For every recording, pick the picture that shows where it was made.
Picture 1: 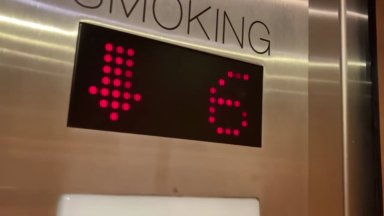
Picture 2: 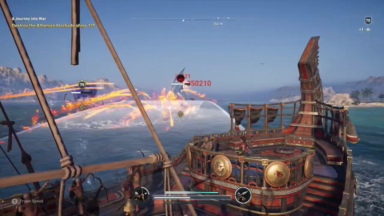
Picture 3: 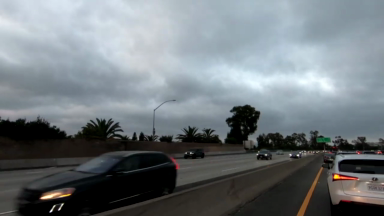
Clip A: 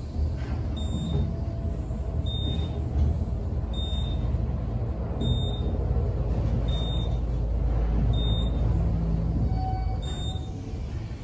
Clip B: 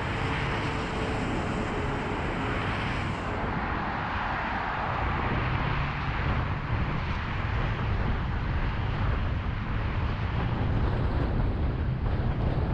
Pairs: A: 1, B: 3